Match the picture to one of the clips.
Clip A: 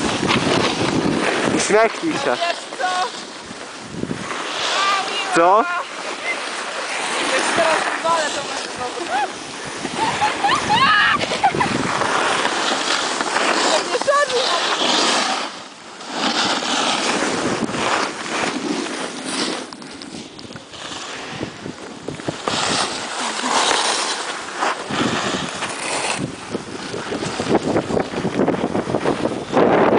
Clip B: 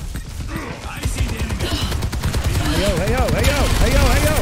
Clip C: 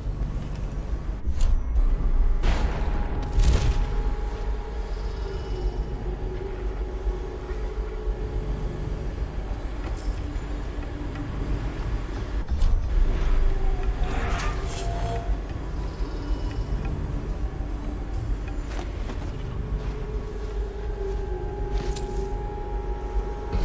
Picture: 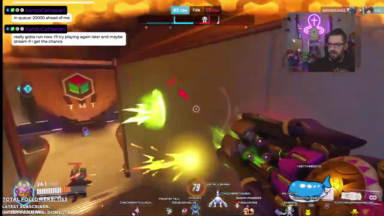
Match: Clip B